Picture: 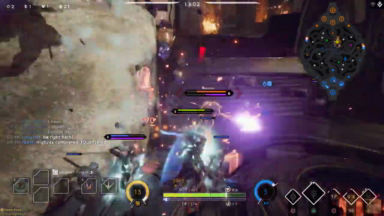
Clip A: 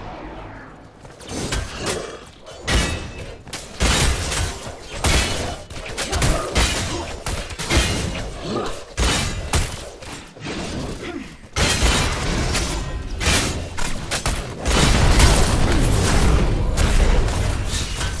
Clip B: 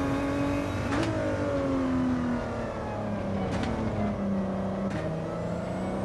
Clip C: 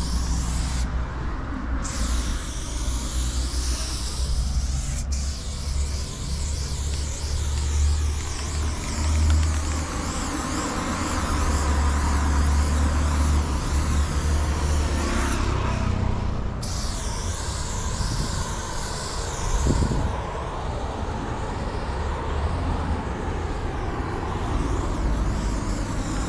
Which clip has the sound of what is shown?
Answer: A